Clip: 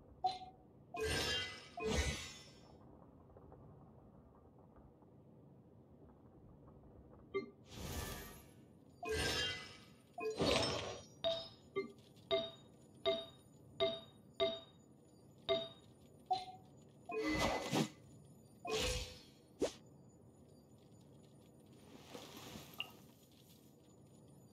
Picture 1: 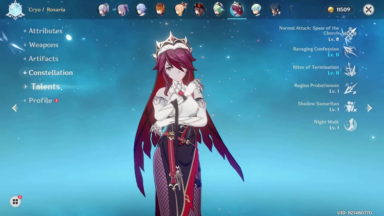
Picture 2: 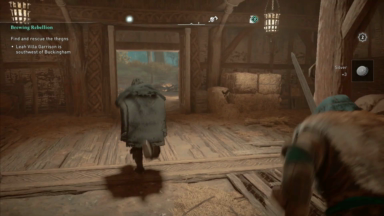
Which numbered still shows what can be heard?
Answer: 1